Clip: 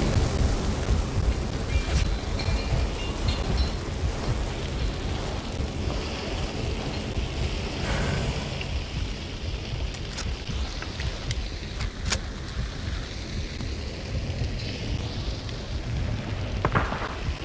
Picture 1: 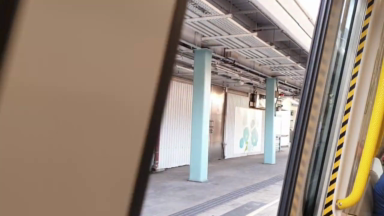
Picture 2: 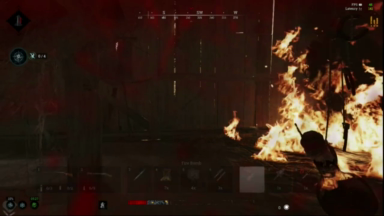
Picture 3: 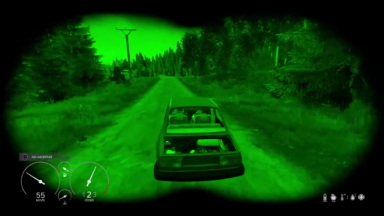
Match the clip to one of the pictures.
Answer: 2